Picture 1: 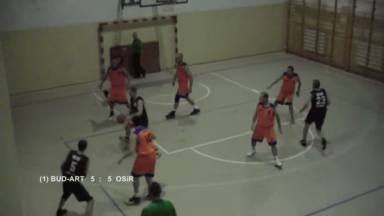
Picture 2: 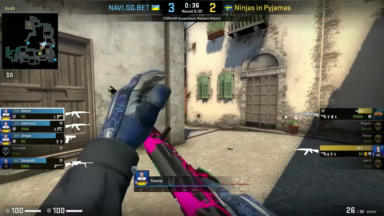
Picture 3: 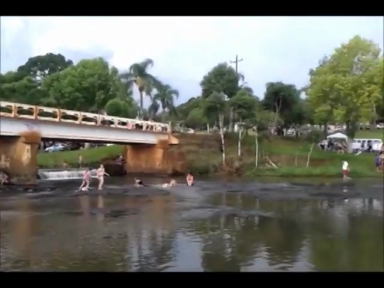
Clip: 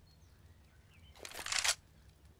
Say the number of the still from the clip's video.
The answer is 2